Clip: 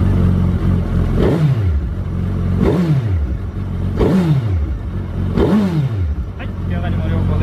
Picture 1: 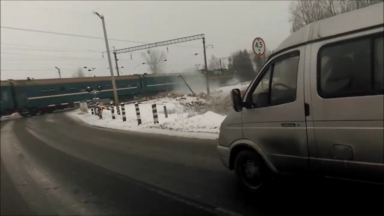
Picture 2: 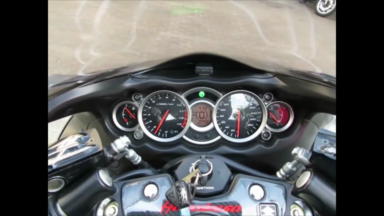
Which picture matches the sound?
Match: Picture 2